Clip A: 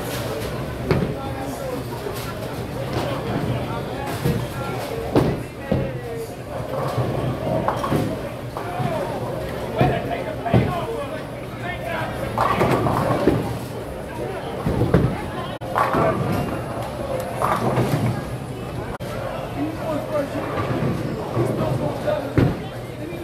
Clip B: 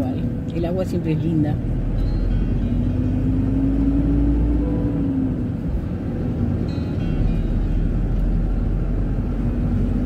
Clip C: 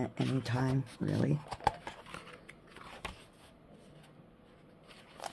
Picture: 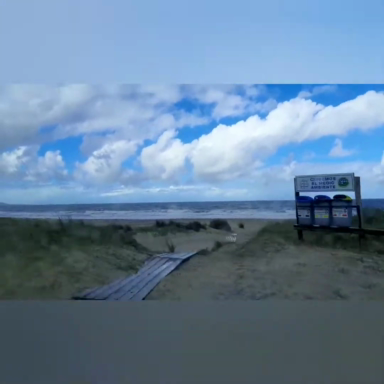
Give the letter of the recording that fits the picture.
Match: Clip B